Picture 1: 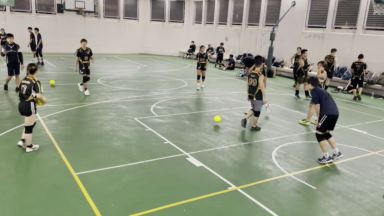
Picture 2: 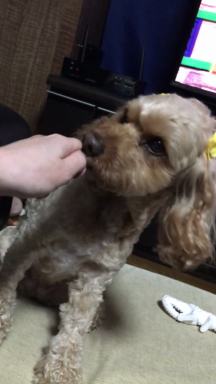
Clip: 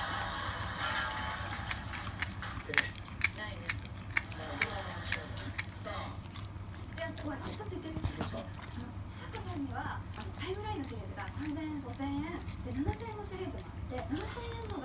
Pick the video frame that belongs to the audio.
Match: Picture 2